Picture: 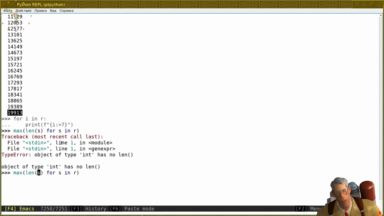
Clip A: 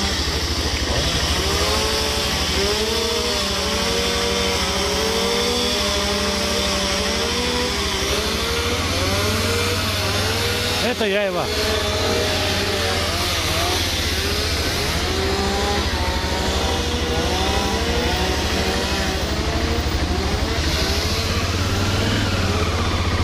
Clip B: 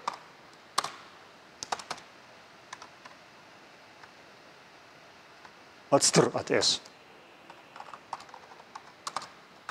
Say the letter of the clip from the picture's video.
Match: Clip B